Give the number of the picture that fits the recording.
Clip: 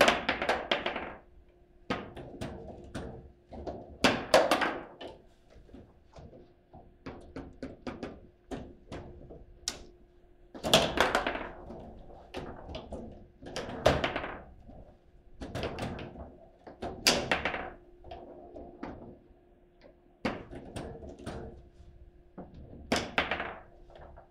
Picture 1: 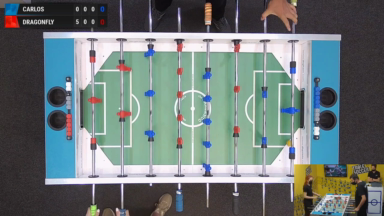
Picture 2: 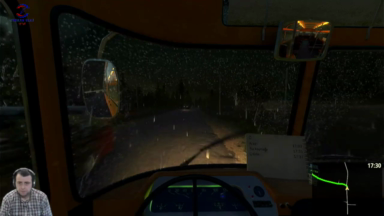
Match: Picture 1